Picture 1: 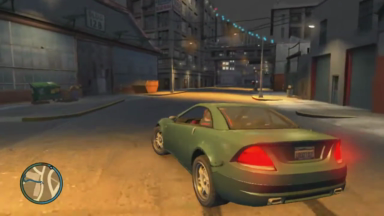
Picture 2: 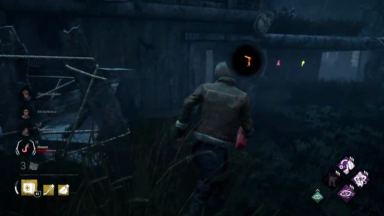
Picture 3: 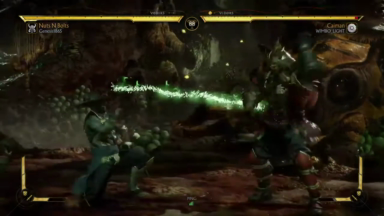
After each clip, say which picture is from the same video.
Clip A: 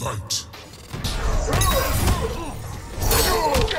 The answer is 3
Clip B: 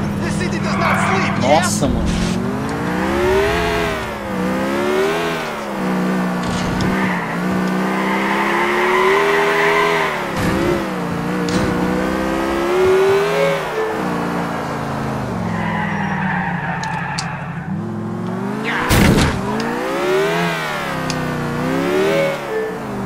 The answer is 1